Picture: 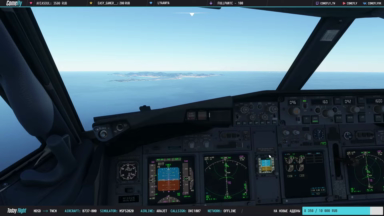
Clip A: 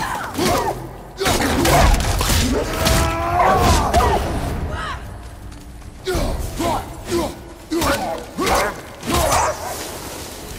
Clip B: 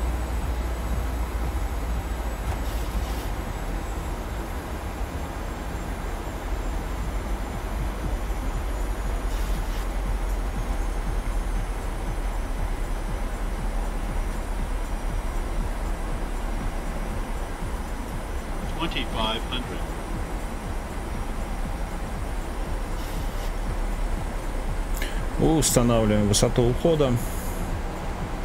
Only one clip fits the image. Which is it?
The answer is B